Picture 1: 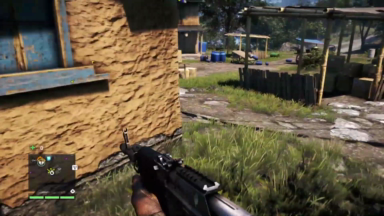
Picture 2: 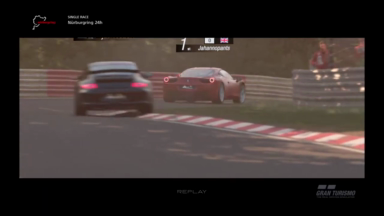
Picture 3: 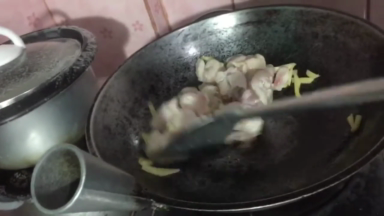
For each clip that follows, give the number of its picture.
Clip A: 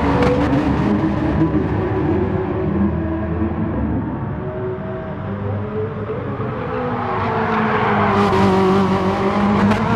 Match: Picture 2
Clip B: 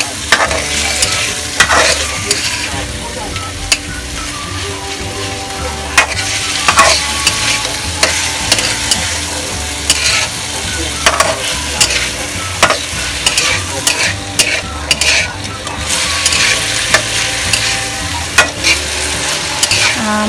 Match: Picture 3